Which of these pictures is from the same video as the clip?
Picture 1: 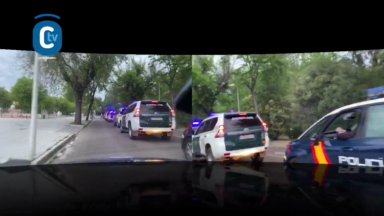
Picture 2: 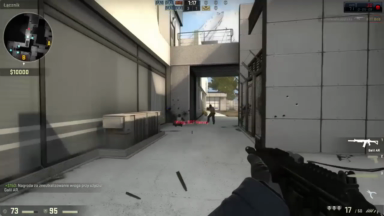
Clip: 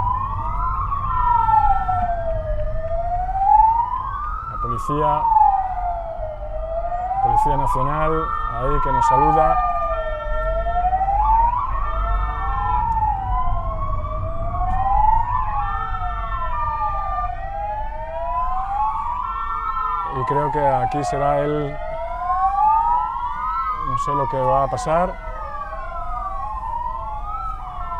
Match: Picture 1